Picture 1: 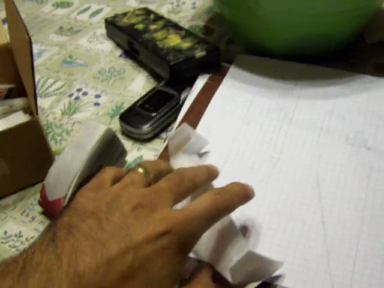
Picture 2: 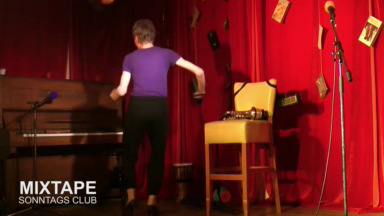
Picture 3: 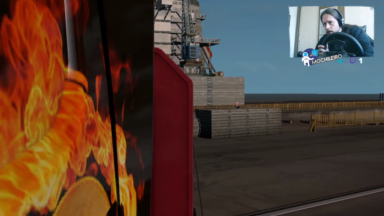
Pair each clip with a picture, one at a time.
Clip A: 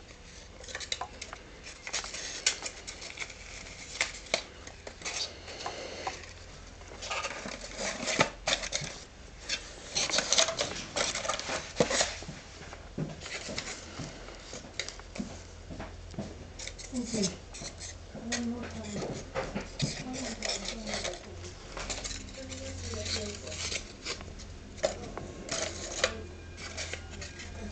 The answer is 1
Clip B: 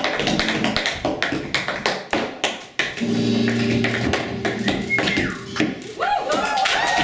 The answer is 2